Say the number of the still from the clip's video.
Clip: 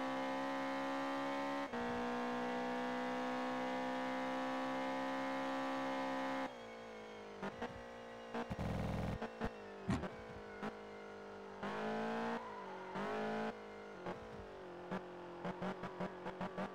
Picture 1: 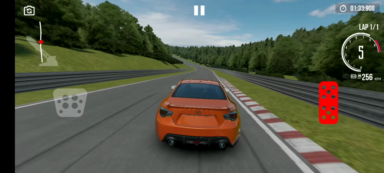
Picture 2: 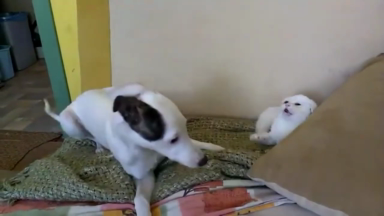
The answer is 1